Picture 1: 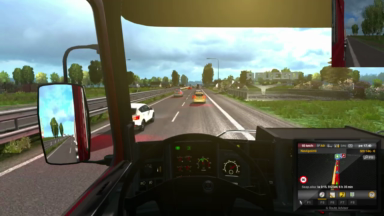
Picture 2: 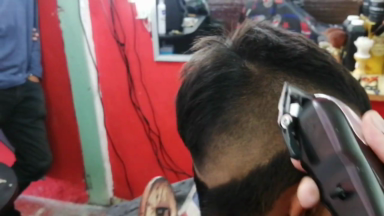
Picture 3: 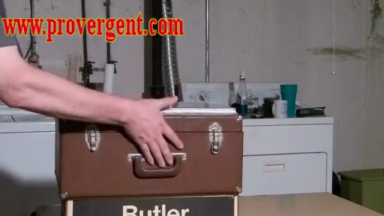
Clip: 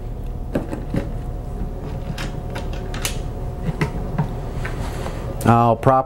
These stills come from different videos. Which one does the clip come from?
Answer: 3